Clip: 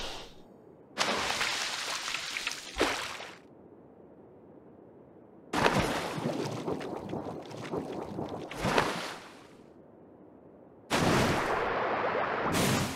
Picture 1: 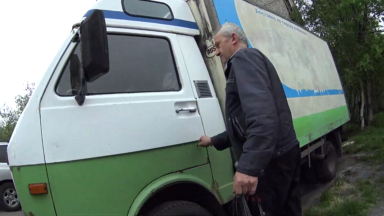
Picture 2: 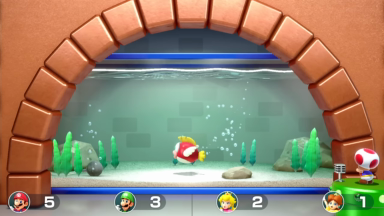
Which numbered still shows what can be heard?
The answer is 2